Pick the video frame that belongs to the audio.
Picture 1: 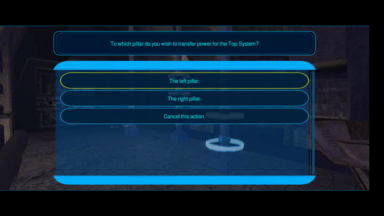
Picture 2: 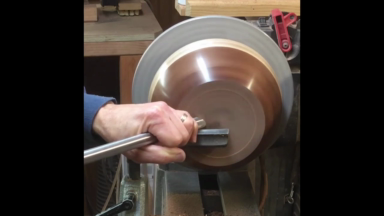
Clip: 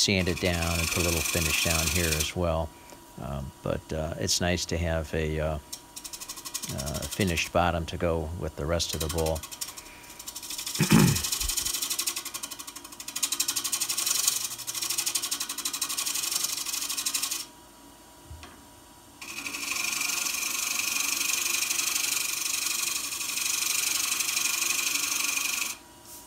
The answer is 2